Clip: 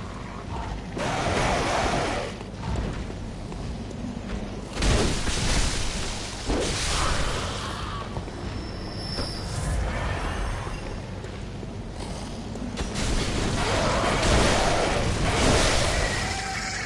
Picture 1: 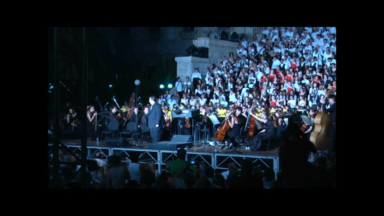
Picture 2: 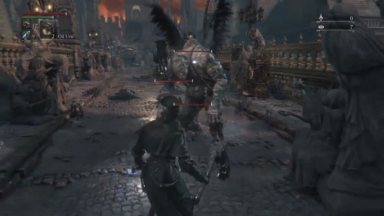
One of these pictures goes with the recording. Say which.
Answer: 2